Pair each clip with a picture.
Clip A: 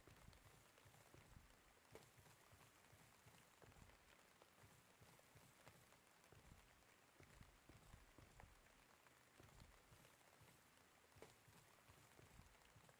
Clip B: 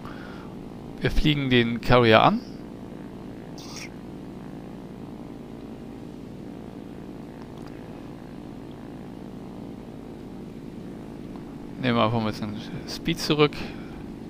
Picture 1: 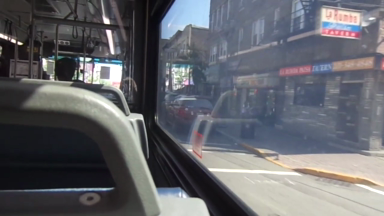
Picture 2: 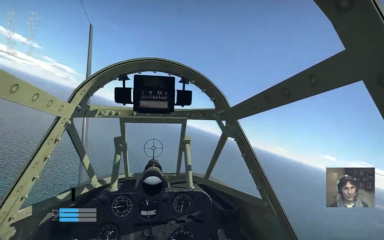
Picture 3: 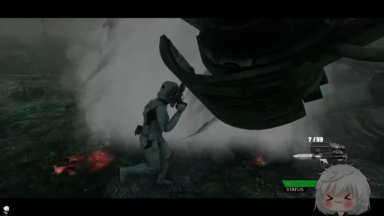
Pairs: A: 3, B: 2